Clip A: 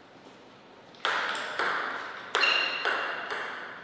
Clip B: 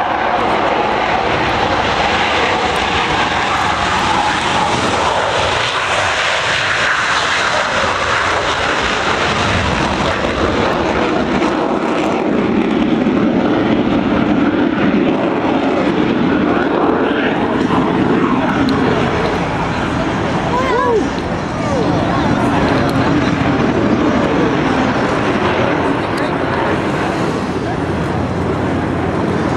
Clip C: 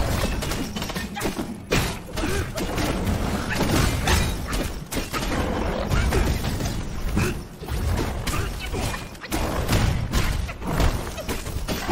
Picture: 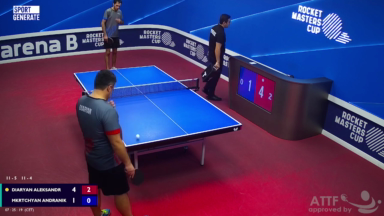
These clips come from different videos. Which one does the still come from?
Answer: A